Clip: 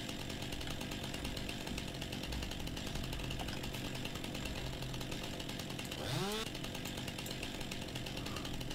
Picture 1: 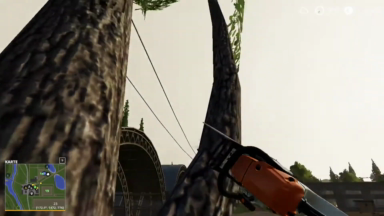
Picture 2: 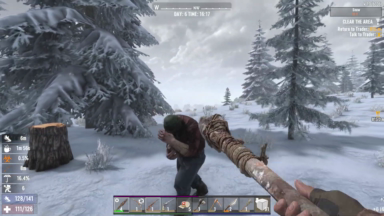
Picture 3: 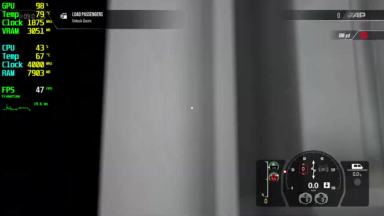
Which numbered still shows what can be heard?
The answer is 1